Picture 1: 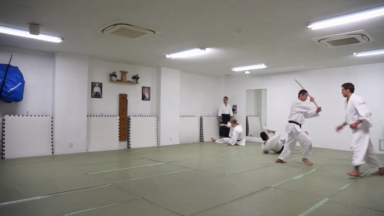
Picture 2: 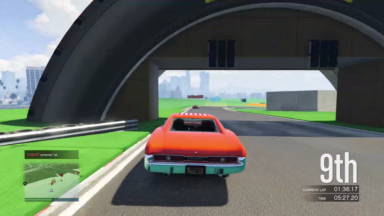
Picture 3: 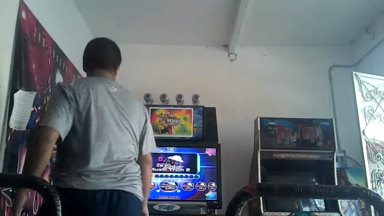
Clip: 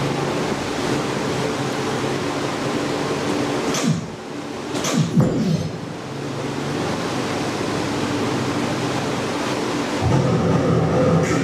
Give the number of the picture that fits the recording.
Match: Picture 3